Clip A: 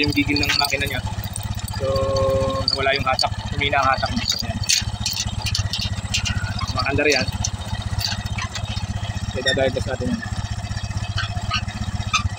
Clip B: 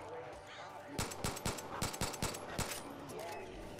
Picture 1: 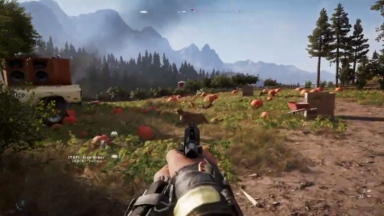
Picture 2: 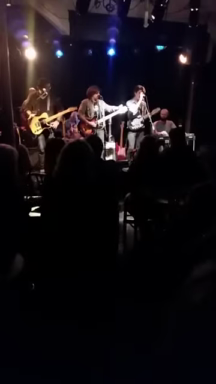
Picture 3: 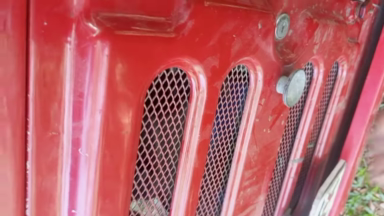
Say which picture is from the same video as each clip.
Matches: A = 3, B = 1